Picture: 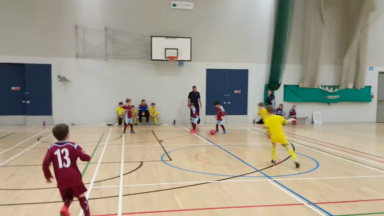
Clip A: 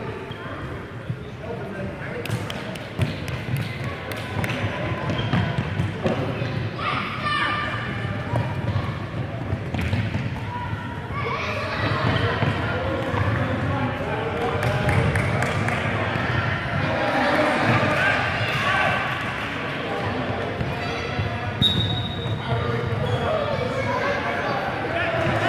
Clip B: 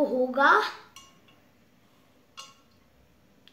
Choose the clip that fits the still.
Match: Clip A